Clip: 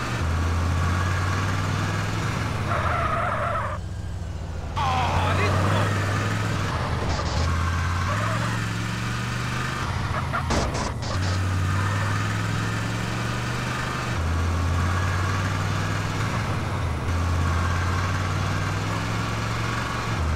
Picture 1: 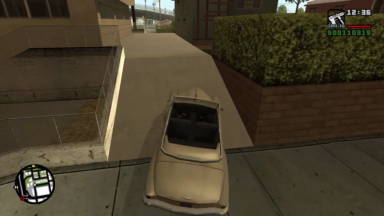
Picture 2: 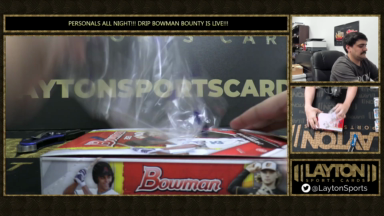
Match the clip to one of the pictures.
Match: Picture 1